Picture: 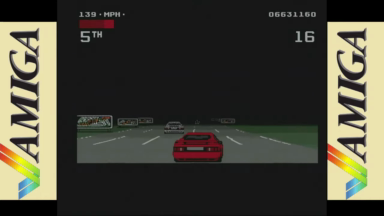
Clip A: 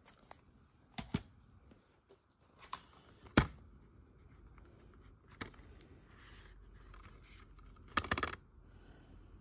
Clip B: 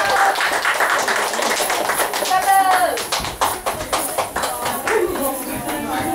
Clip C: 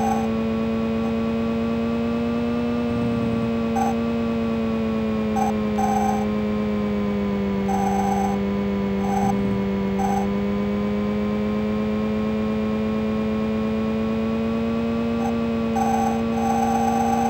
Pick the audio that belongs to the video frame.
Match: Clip C